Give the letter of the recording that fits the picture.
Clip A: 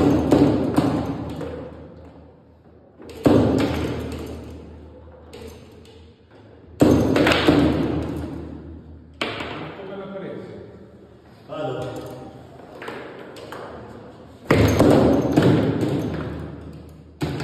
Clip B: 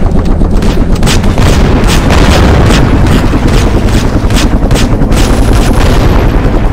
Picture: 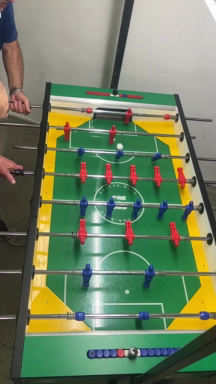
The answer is A